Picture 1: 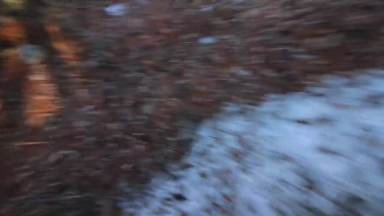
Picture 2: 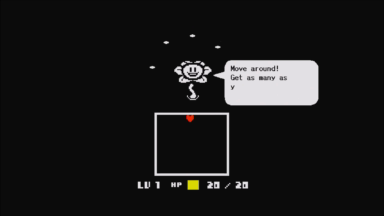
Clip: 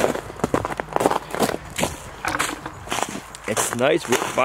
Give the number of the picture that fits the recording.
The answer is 1